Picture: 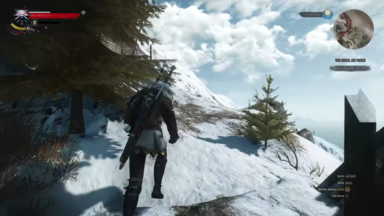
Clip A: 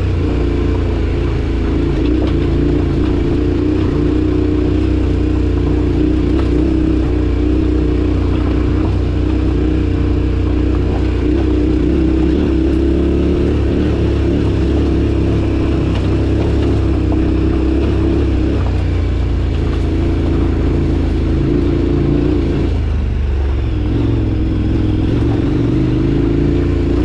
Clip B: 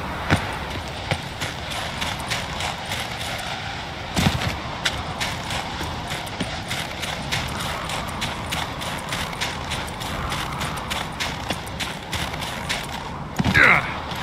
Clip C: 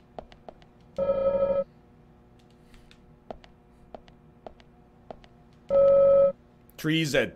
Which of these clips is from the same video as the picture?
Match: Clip B